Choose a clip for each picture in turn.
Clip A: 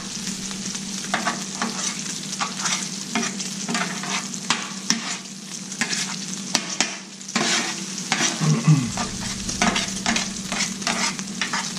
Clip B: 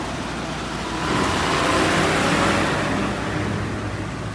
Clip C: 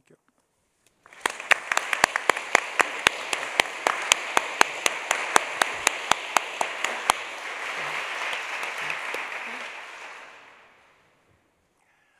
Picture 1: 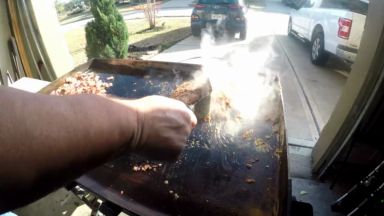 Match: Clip A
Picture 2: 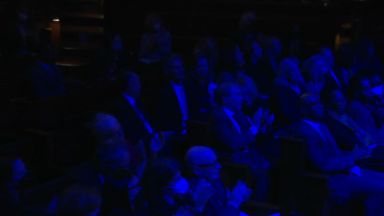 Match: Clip C